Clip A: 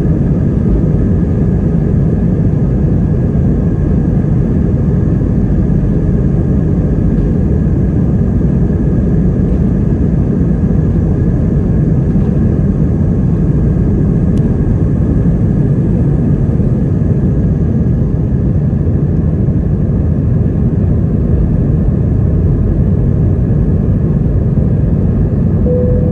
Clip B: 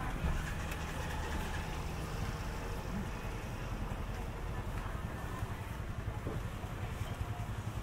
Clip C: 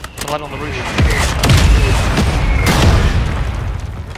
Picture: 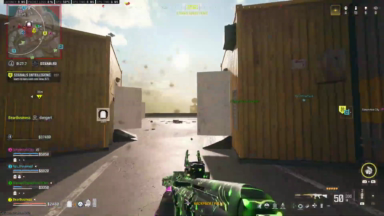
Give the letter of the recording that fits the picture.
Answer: C